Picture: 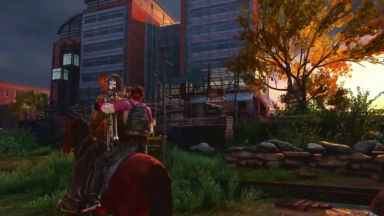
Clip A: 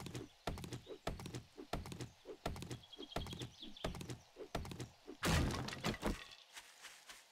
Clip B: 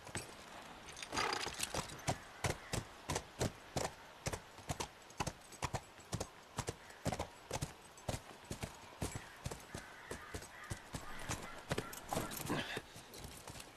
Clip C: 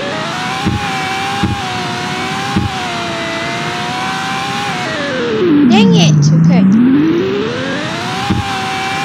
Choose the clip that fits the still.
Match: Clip B